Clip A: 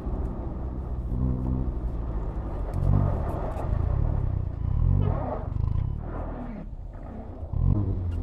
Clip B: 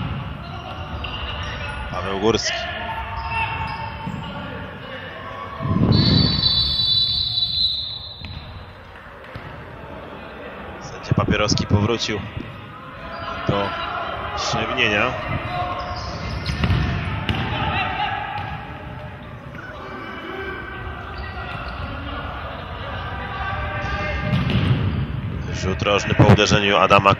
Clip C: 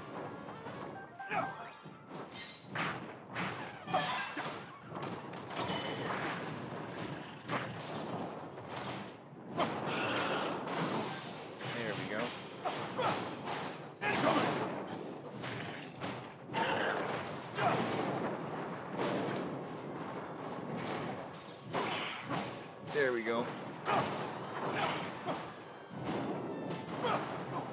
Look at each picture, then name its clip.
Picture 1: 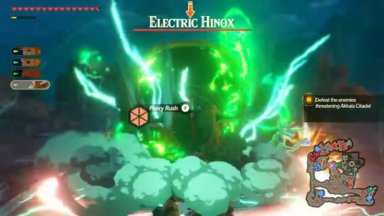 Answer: C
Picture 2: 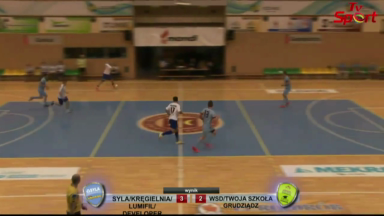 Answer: B